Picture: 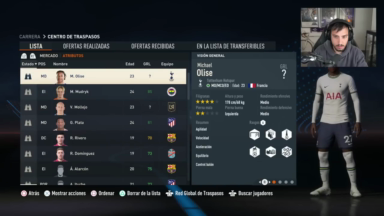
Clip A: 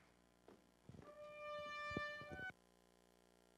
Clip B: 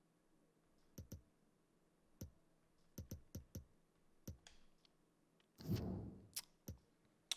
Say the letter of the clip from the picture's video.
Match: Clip B